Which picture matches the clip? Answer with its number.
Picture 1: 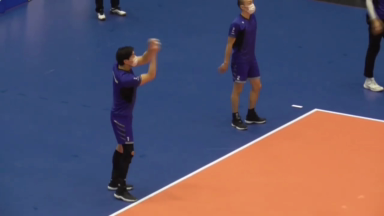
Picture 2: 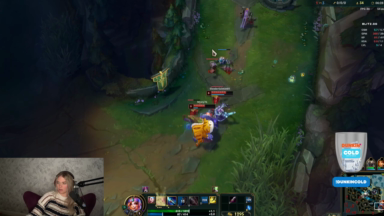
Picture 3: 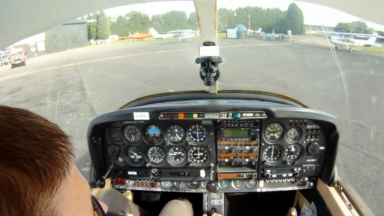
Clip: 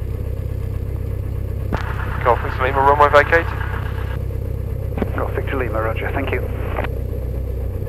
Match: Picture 3